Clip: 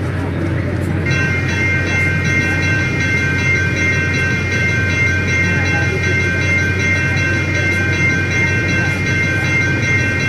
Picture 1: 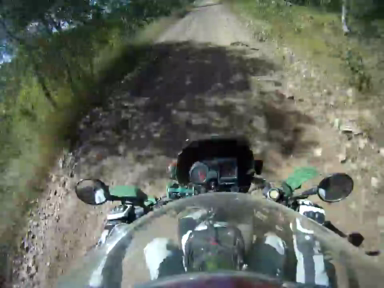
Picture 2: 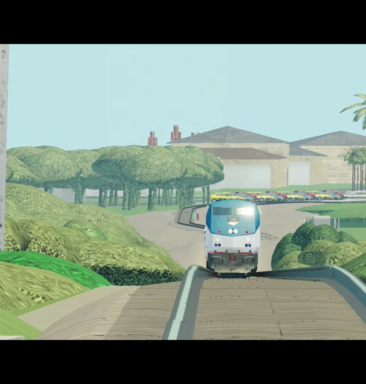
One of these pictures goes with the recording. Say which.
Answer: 2